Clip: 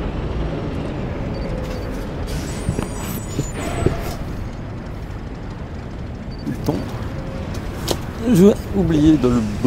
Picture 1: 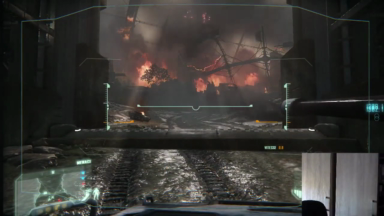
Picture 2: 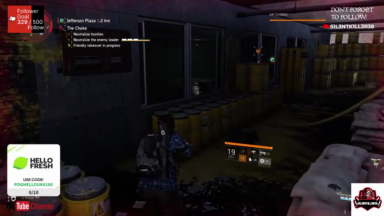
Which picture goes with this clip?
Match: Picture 1